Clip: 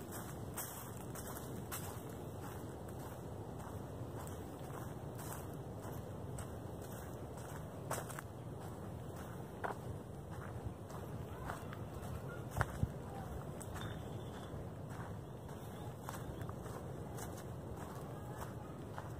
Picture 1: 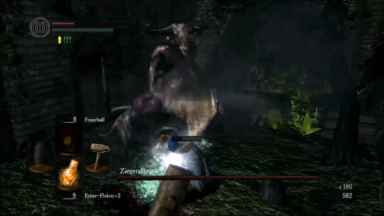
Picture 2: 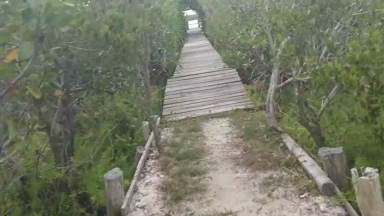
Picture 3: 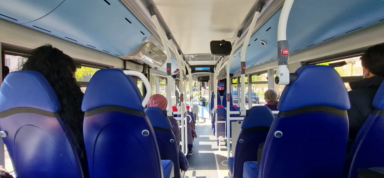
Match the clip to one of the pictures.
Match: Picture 2